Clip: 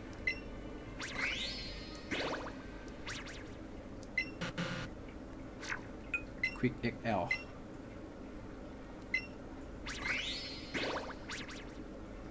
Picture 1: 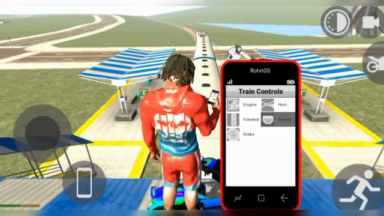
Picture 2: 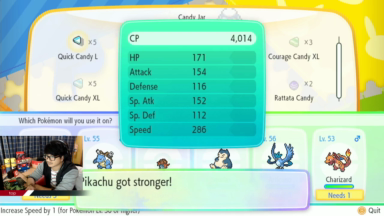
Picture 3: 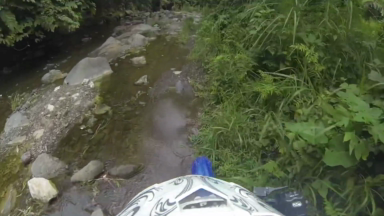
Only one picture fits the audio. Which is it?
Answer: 2